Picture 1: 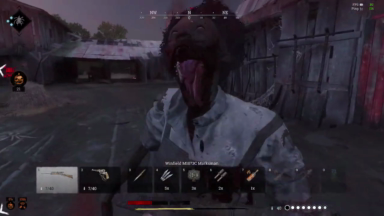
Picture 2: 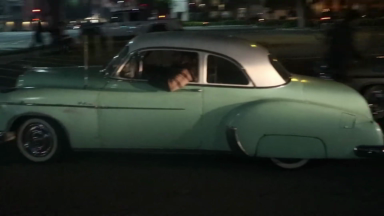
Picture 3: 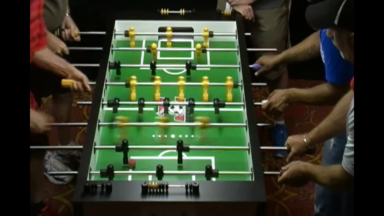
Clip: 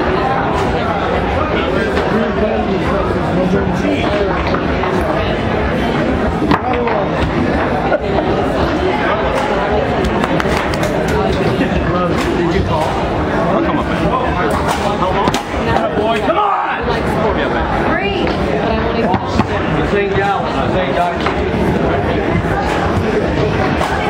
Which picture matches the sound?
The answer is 3